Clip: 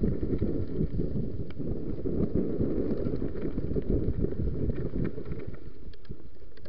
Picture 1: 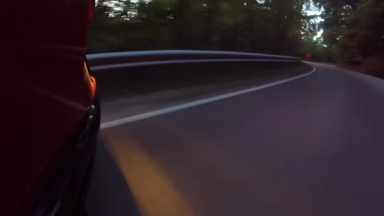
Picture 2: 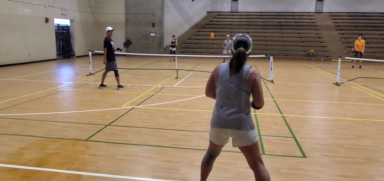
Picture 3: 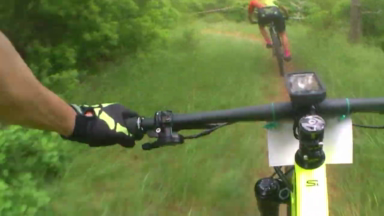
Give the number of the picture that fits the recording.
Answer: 3